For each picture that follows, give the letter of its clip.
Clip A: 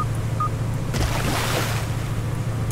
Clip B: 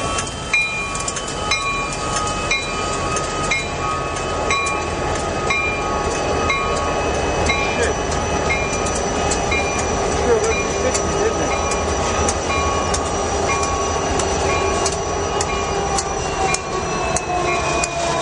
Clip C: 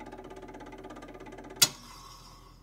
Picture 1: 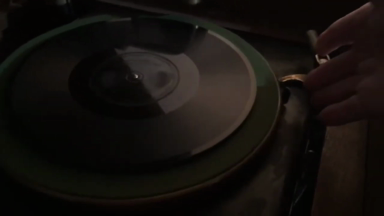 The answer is C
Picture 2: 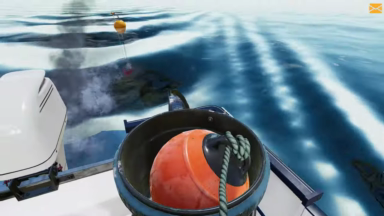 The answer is A